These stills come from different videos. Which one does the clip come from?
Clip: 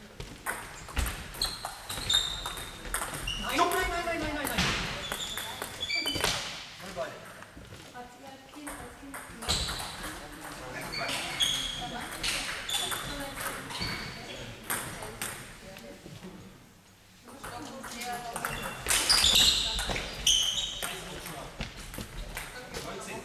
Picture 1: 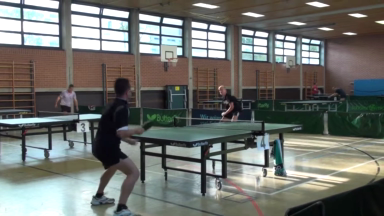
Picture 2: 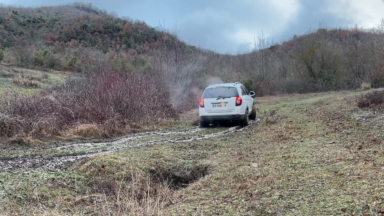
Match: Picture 1